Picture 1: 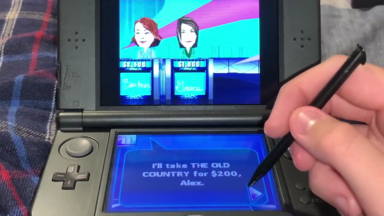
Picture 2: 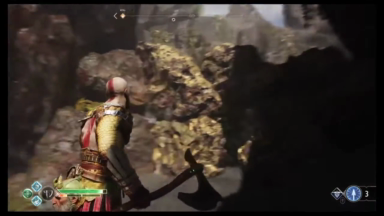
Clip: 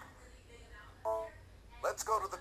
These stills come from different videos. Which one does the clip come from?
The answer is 1